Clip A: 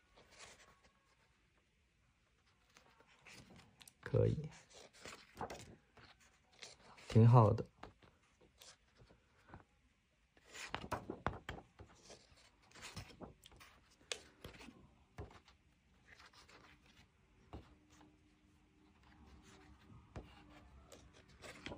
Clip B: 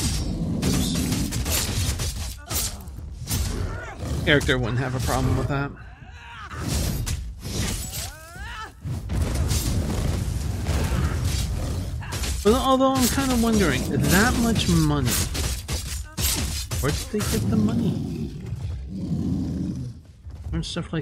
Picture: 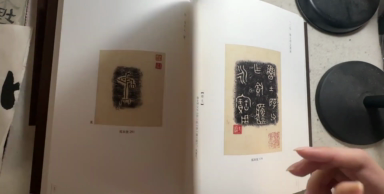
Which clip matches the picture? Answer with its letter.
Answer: A